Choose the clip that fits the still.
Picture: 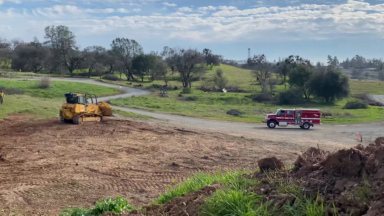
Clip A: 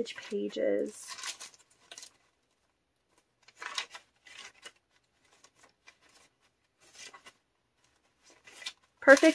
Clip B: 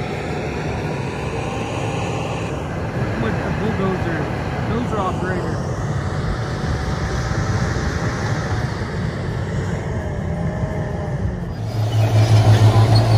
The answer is B